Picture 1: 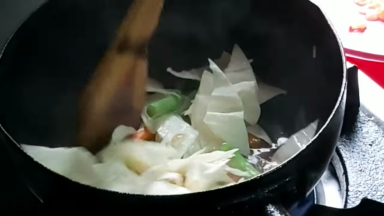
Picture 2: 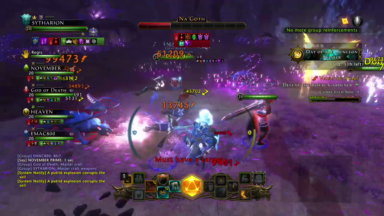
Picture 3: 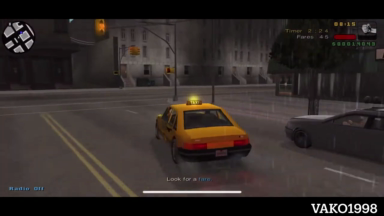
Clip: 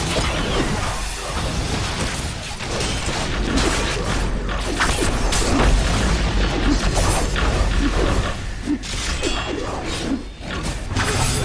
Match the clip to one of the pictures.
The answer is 2